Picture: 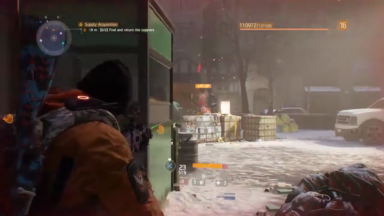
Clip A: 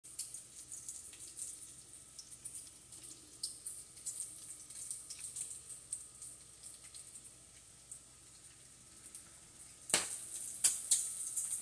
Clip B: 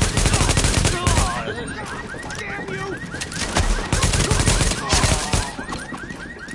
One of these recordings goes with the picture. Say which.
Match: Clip B